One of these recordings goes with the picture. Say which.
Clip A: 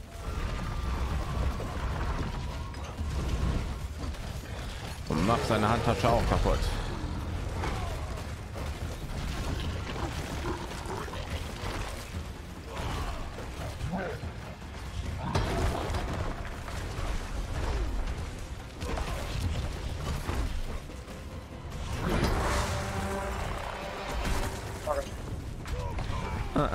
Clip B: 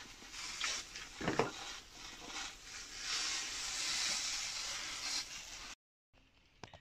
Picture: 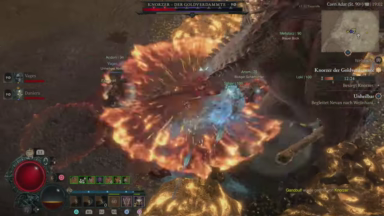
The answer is A